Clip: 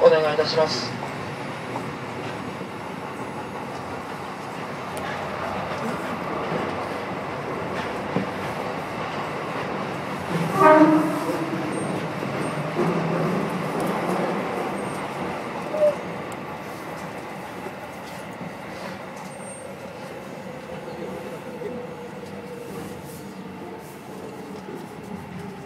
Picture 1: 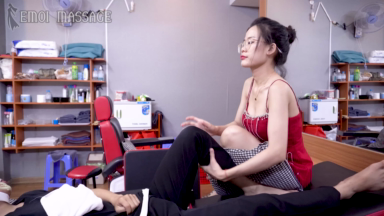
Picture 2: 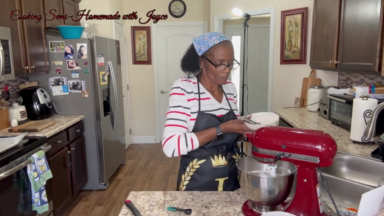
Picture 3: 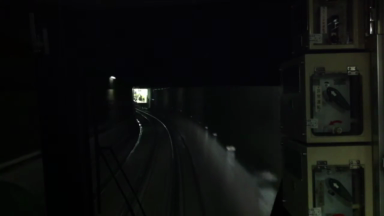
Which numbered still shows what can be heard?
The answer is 3